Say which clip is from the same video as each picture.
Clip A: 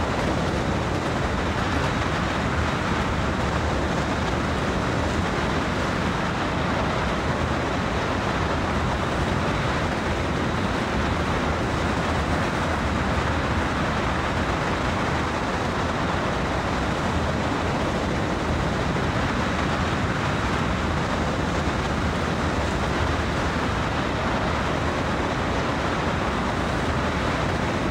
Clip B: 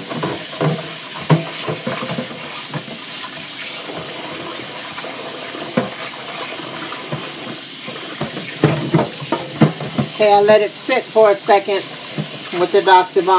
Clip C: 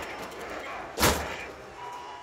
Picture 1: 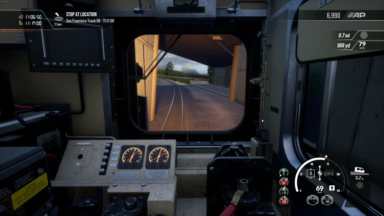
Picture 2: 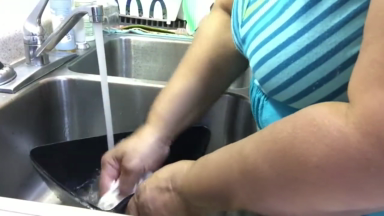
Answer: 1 A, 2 B